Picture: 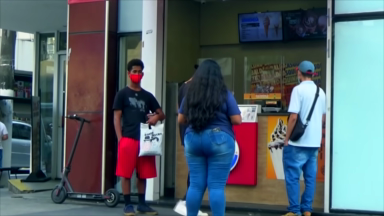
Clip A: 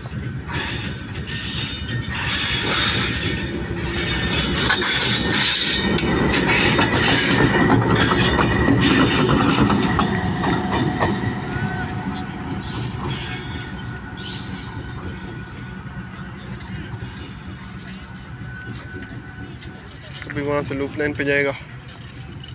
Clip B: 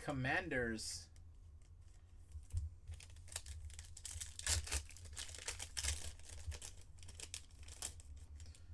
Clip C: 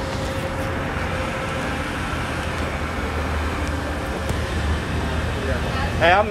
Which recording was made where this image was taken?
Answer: C